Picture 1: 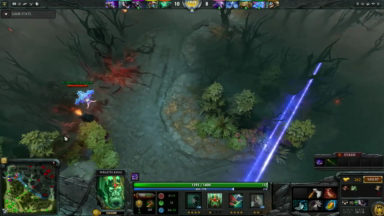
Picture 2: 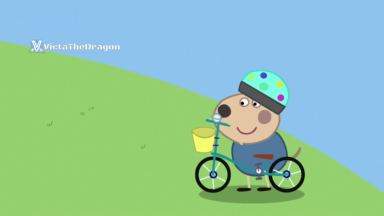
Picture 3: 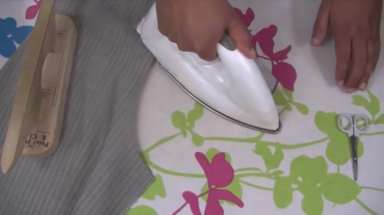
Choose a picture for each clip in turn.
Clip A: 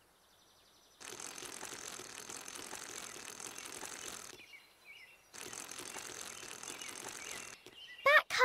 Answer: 2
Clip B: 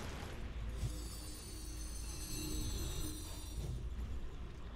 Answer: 1